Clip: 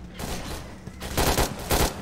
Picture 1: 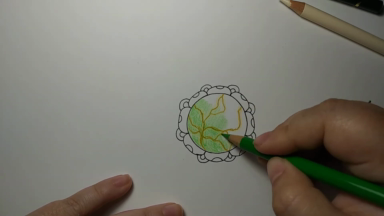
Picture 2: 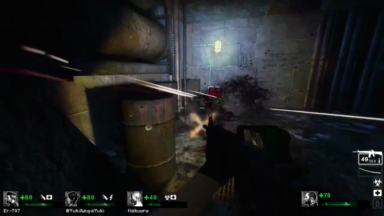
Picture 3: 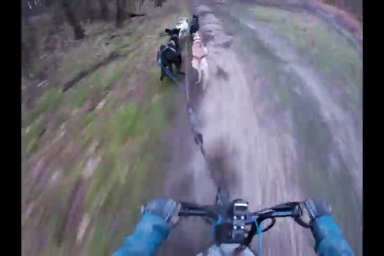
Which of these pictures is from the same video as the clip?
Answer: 2